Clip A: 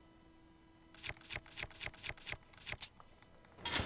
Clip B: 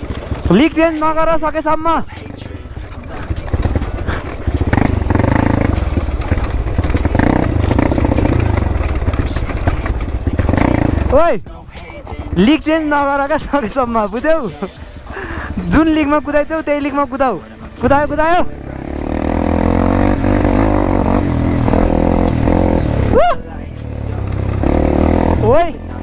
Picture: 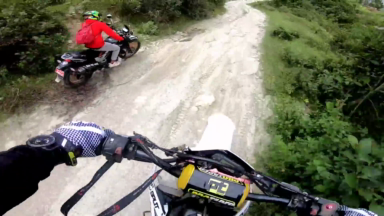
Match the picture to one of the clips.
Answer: B